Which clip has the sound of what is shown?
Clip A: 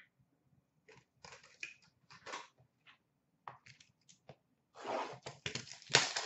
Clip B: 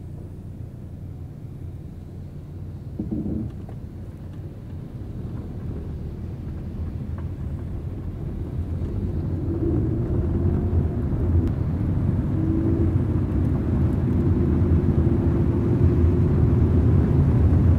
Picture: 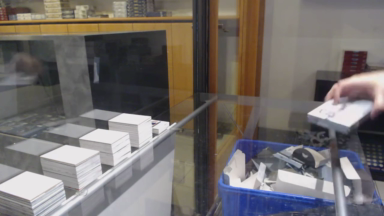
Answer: A